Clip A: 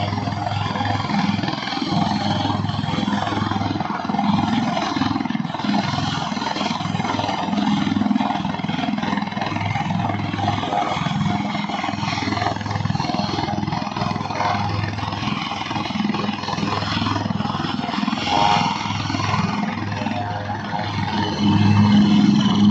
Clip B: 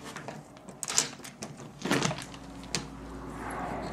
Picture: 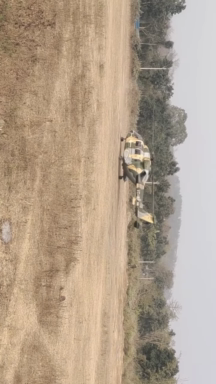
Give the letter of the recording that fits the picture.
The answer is A